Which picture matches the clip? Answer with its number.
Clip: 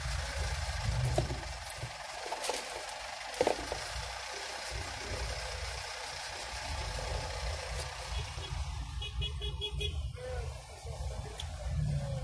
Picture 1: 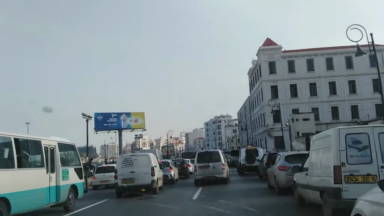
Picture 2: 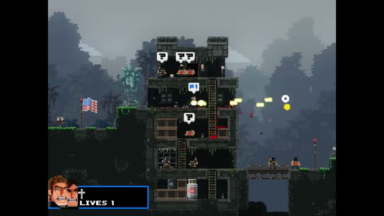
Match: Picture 1